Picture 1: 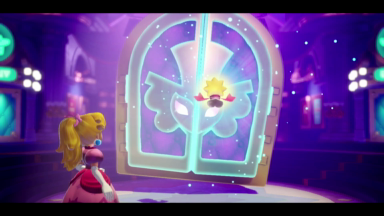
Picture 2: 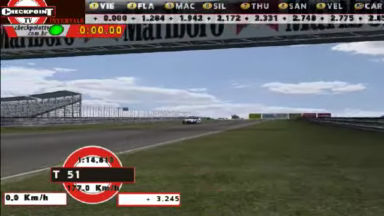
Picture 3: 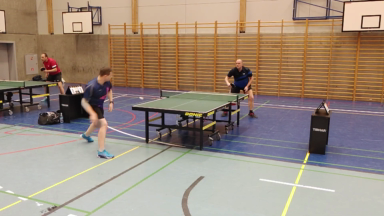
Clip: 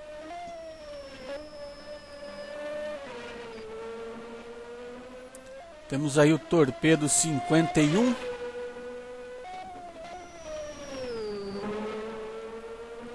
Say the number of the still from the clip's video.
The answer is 2